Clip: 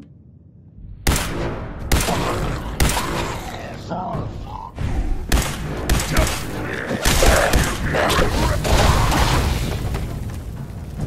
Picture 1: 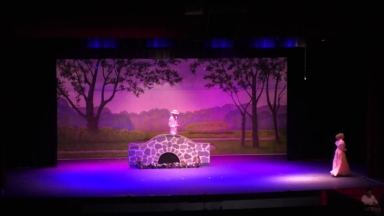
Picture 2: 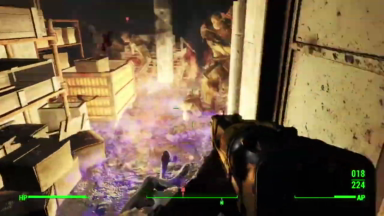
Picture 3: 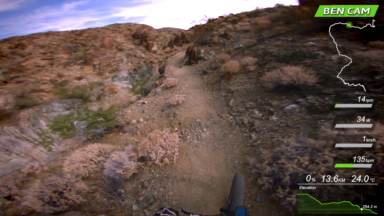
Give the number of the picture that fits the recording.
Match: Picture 2